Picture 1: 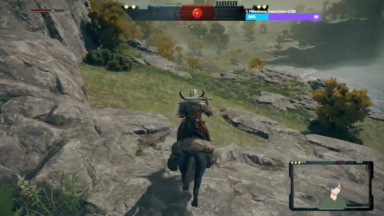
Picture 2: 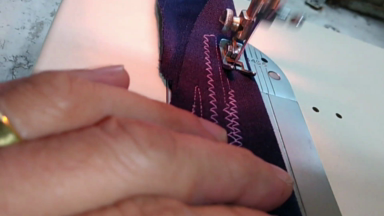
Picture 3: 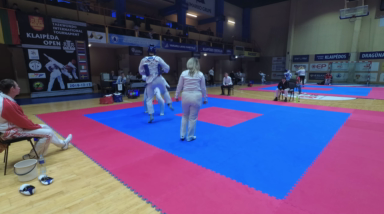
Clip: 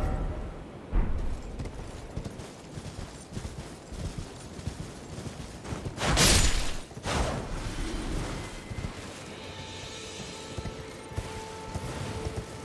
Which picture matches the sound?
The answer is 1